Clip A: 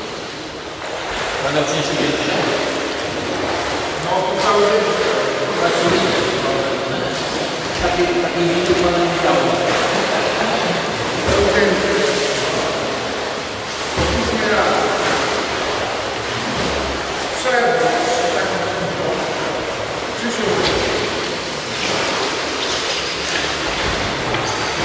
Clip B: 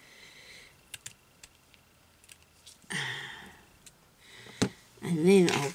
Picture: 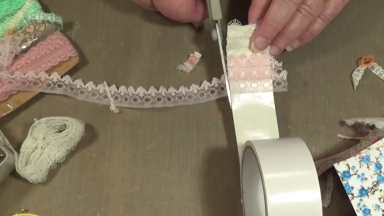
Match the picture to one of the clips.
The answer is B